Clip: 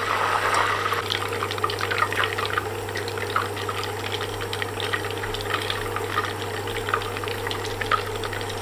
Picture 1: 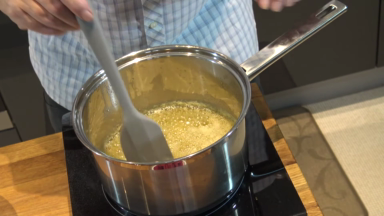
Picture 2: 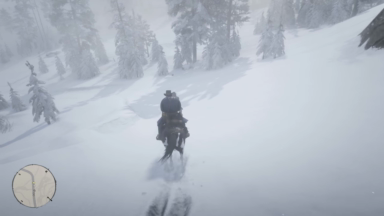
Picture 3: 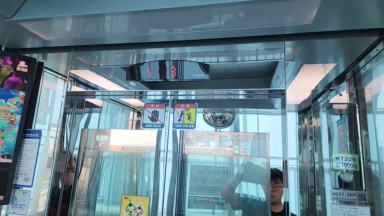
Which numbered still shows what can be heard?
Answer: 1